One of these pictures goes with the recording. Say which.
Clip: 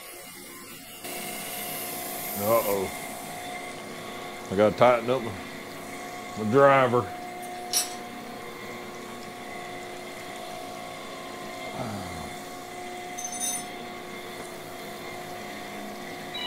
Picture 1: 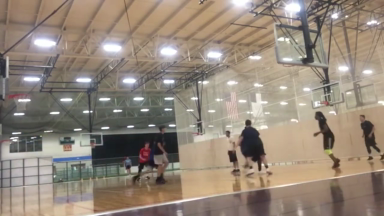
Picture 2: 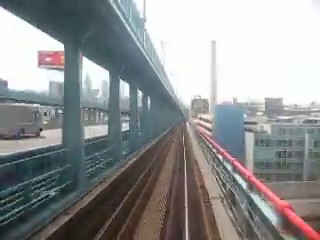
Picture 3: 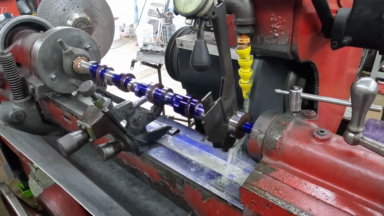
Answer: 3